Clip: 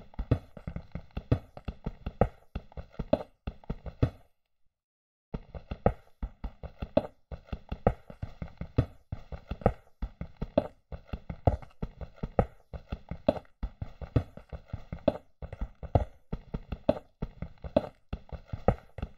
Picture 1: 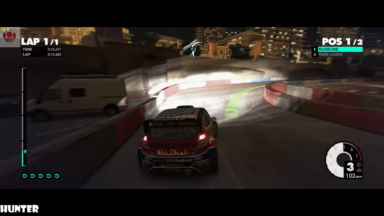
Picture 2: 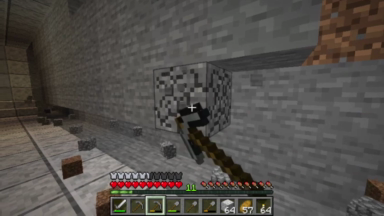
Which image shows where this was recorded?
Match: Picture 2